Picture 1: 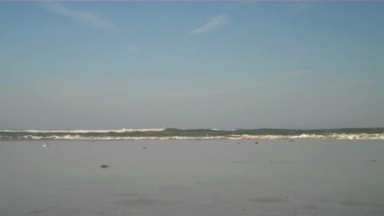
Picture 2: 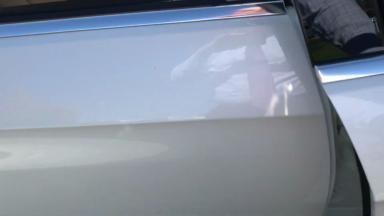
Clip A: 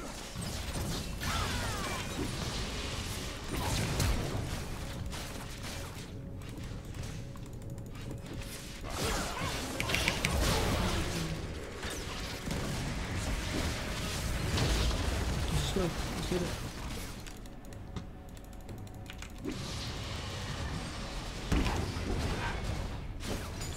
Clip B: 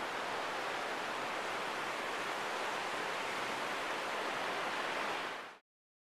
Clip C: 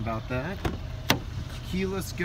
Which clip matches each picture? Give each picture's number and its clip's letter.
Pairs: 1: B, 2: C